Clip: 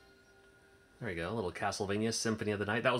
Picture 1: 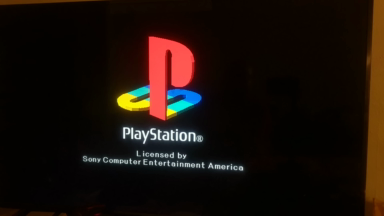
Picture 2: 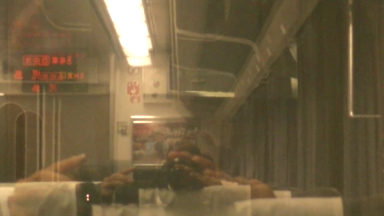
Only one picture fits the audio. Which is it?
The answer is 1